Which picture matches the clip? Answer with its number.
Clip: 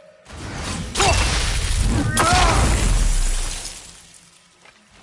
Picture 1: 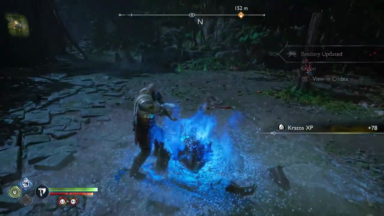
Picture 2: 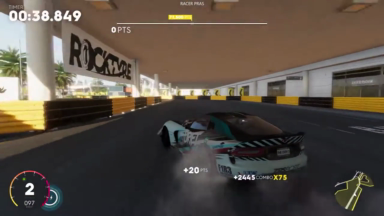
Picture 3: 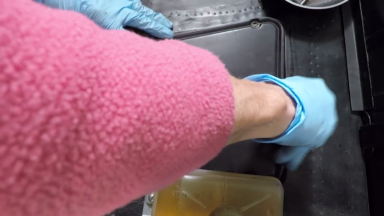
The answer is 1